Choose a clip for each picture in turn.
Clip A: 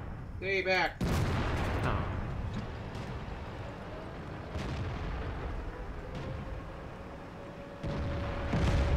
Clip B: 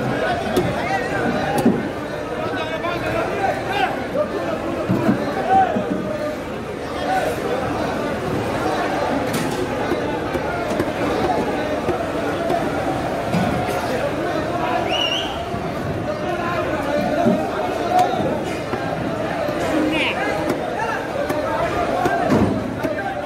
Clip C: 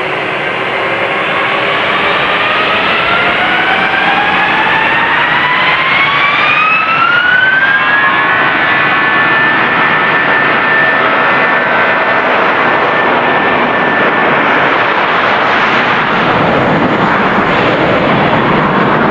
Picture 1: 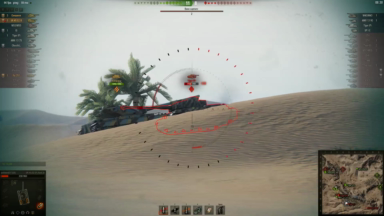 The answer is A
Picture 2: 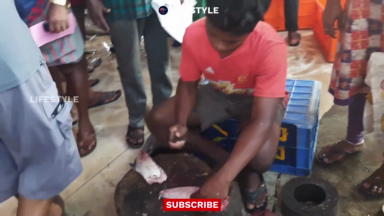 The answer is B